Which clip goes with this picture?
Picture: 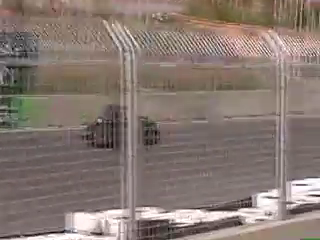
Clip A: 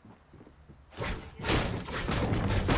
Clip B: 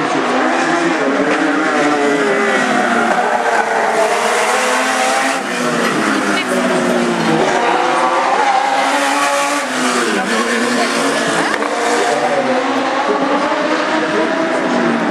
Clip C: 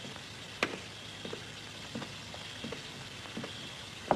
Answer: B